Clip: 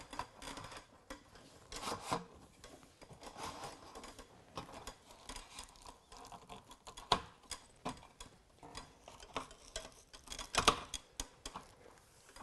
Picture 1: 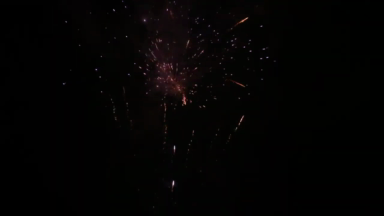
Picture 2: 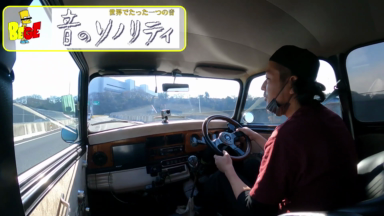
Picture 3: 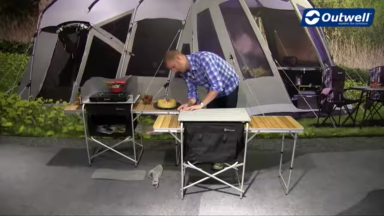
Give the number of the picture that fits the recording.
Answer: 3